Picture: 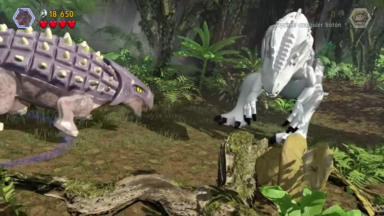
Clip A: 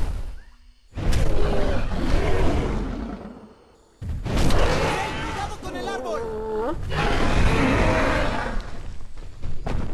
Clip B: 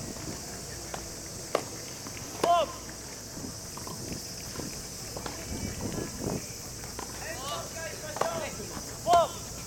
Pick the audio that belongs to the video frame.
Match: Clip A